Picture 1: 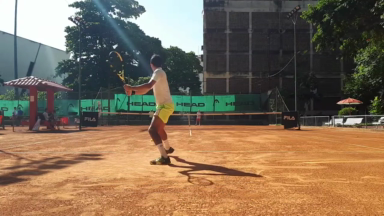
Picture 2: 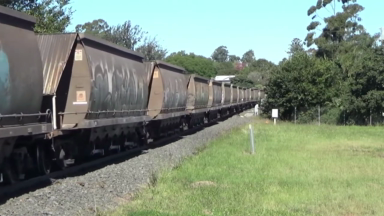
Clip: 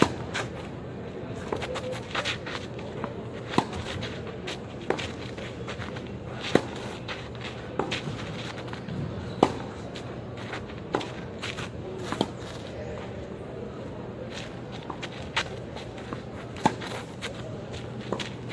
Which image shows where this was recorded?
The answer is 1